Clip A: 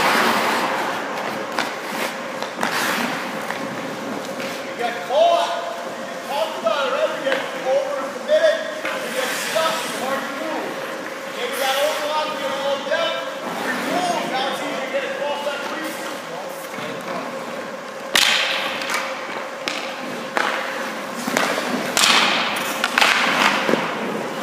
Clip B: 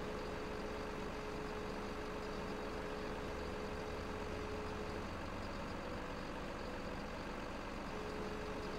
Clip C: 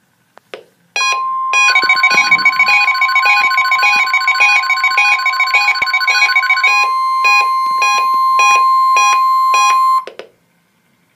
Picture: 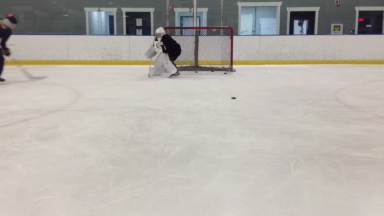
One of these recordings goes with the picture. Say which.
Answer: A